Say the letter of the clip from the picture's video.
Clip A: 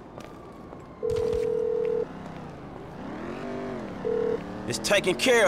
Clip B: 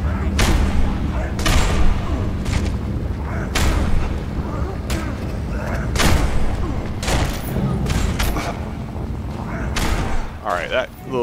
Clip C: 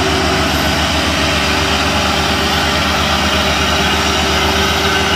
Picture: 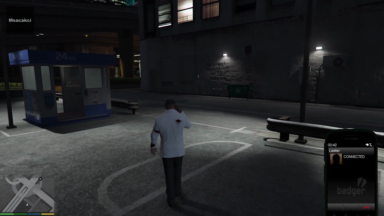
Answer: A